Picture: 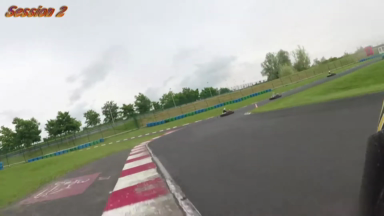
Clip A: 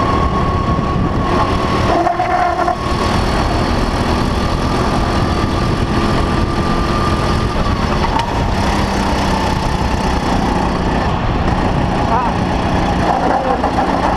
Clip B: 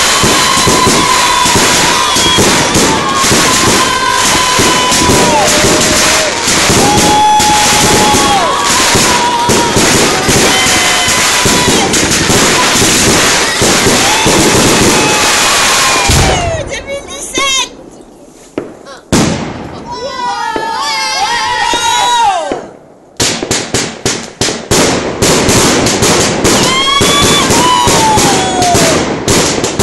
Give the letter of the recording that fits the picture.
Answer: A